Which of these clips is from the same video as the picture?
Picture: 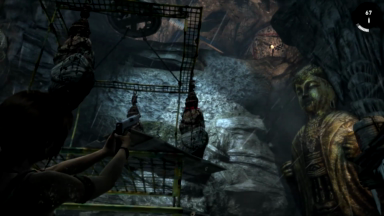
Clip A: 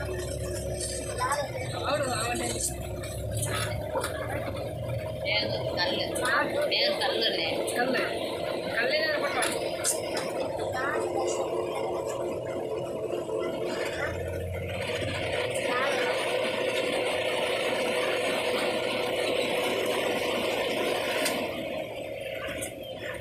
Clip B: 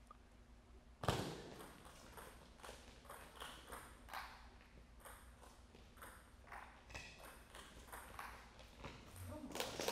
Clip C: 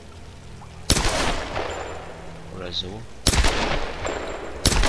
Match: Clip C